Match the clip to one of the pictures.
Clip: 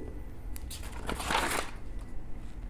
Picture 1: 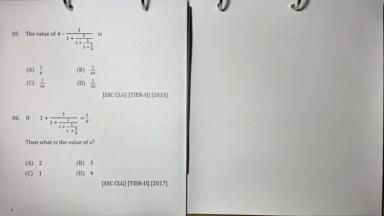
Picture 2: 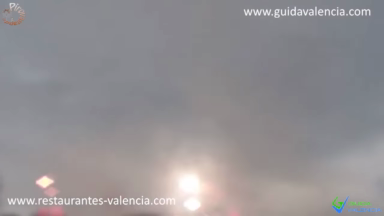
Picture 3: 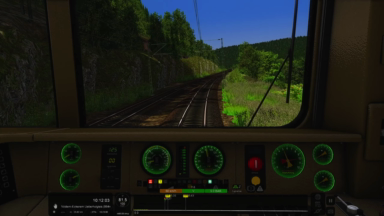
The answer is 1